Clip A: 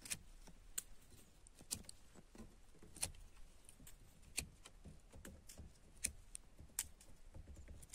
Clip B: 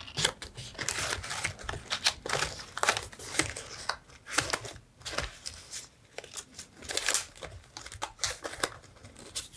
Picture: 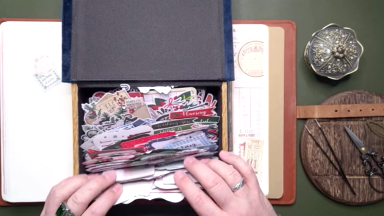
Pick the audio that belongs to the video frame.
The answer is B